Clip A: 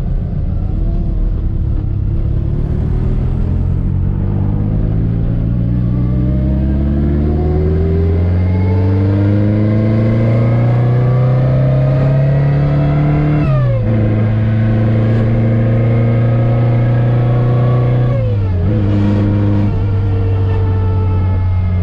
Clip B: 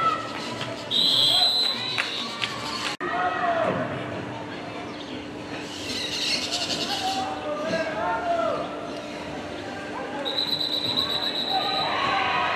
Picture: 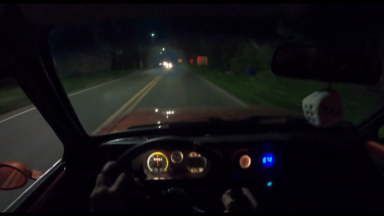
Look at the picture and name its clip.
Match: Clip A